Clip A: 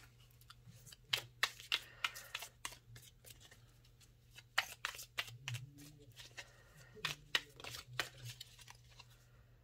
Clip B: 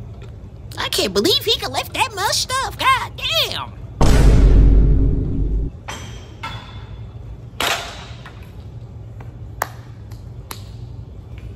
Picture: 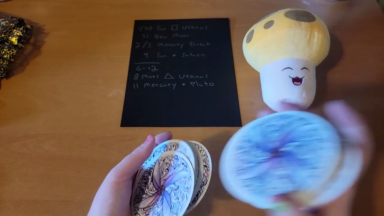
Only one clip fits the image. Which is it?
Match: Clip A